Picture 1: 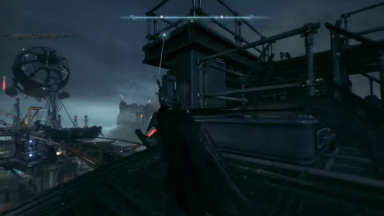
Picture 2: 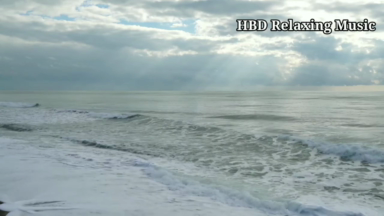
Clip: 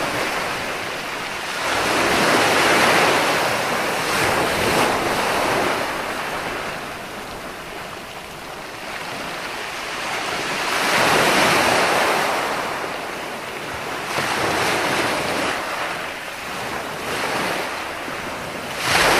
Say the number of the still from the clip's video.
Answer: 2